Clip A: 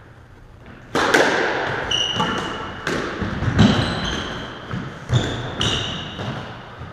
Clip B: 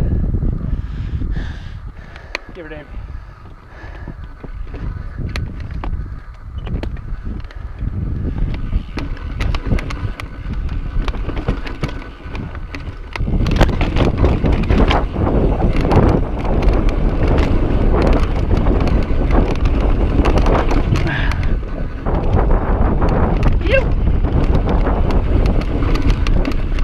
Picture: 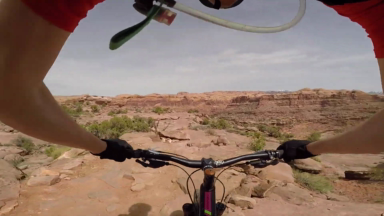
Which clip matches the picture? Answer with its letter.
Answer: B